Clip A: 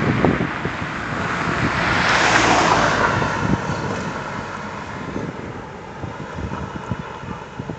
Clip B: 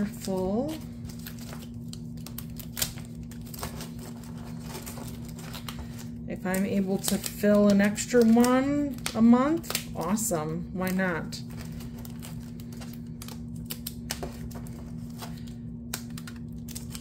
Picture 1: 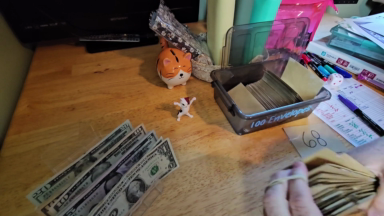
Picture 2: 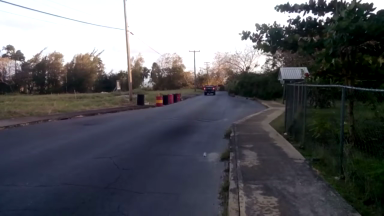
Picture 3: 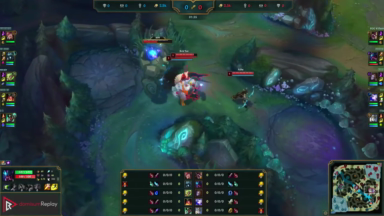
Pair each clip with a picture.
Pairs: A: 2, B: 1